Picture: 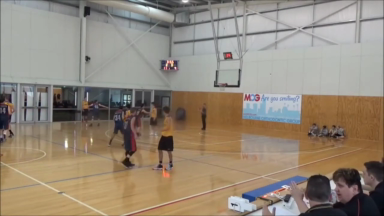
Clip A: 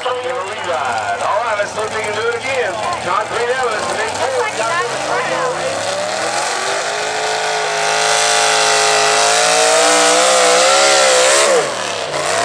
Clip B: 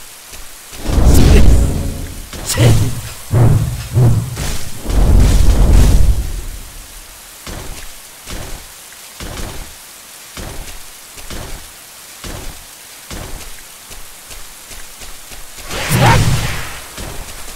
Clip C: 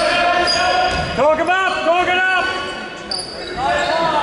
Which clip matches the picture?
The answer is C